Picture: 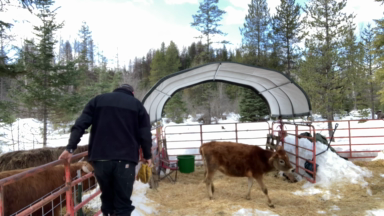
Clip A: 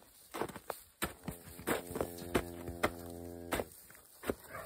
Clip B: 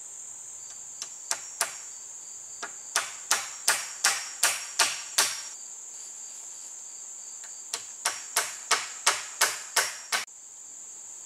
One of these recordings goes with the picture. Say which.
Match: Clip A